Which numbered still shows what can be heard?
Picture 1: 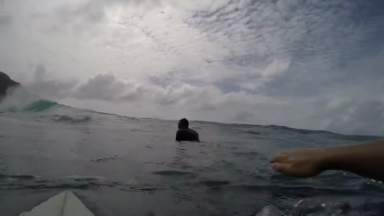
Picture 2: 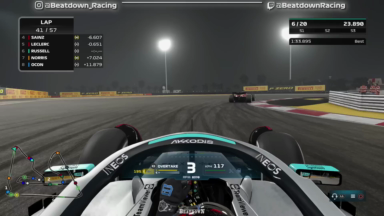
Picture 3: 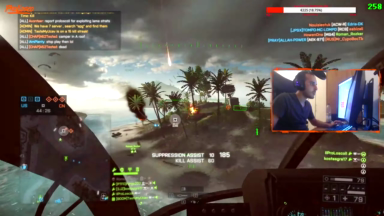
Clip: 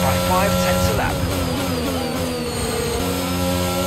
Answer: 2